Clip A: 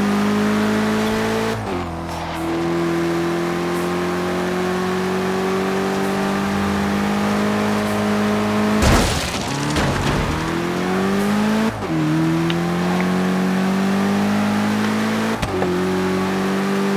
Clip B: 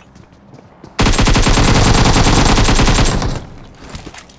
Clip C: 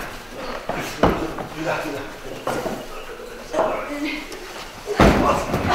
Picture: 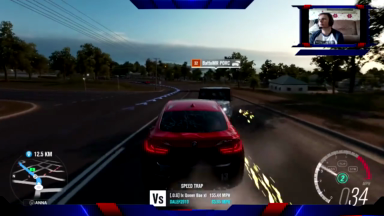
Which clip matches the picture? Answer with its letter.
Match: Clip A